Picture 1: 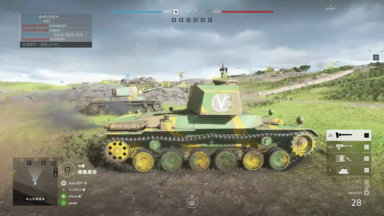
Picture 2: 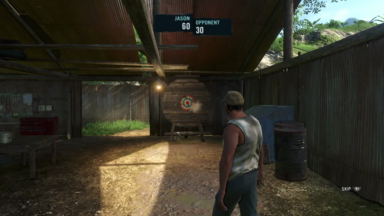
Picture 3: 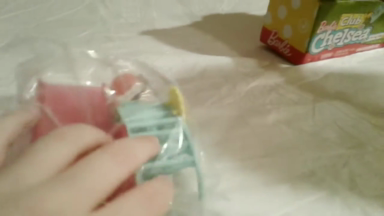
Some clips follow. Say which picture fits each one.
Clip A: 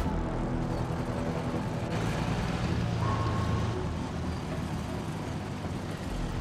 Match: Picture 1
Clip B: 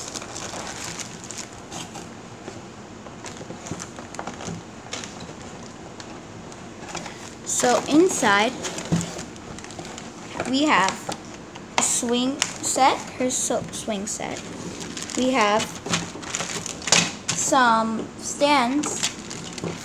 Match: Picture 3